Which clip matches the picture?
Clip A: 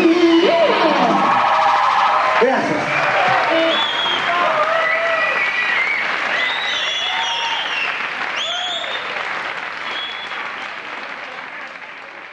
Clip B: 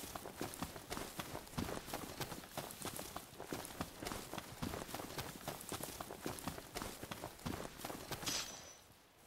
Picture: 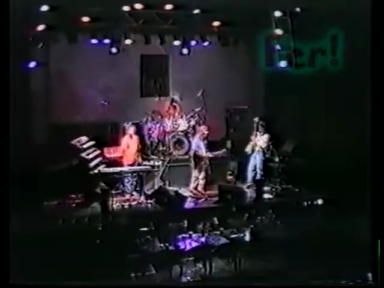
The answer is A